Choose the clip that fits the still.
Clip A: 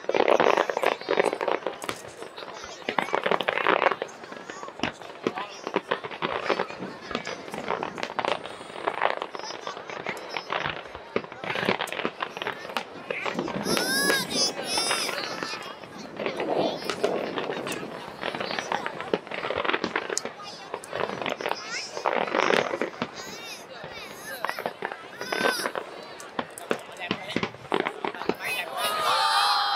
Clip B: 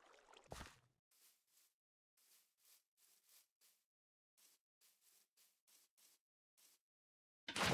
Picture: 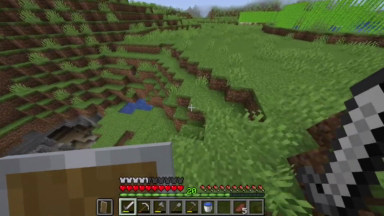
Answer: B